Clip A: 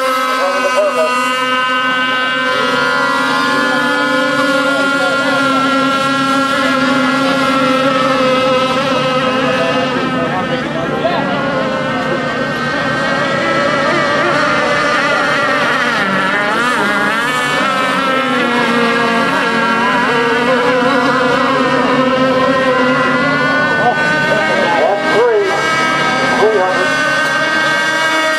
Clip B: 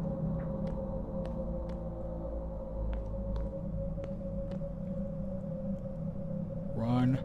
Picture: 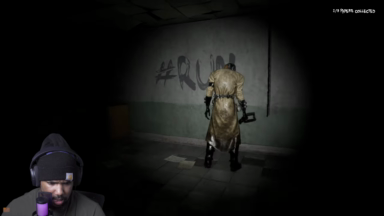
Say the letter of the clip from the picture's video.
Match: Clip B